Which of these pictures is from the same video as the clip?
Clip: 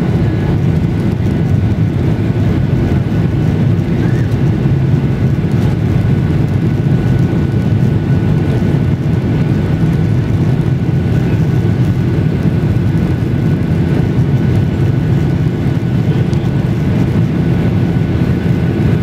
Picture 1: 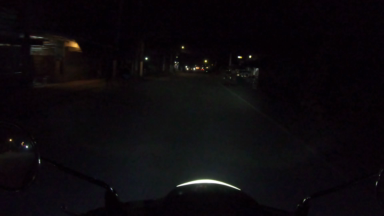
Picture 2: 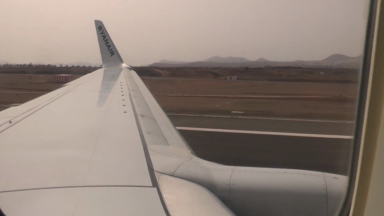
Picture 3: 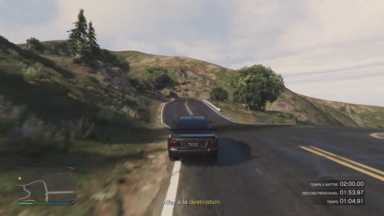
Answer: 2